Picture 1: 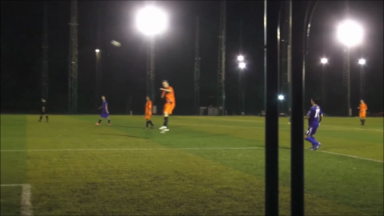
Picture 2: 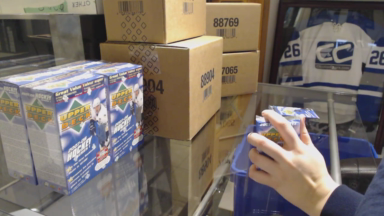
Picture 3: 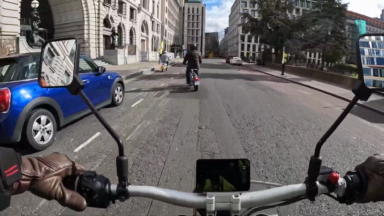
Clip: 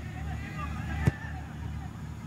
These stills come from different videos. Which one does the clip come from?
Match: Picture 1